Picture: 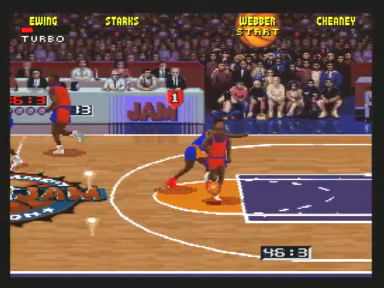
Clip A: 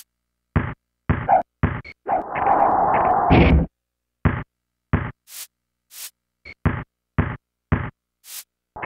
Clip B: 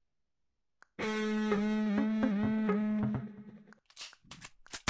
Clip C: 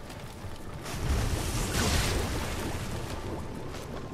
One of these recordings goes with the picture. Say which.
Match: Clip A